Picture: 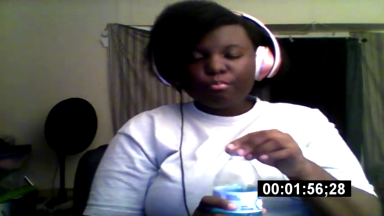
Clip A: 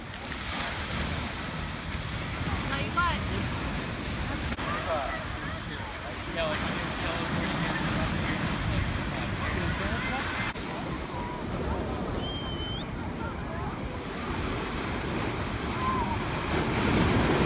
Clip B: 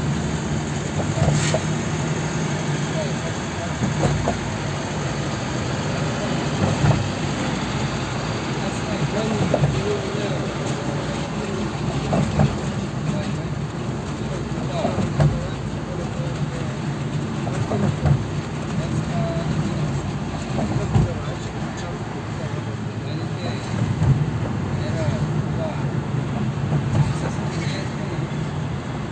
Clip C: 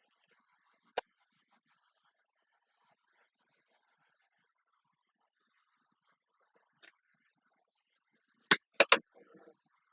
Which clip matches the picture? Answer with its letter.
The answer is C